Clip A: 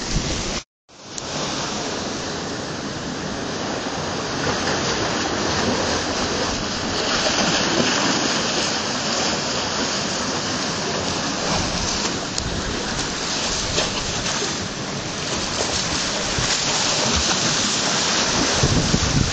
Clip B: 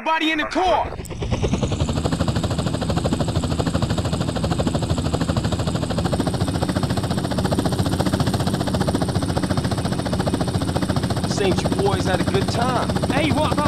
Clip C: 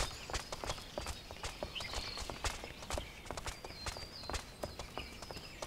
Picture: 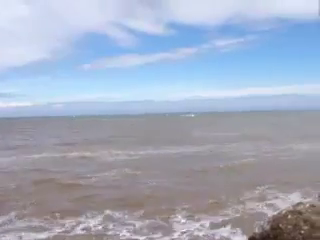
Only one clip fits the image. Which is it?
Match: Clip A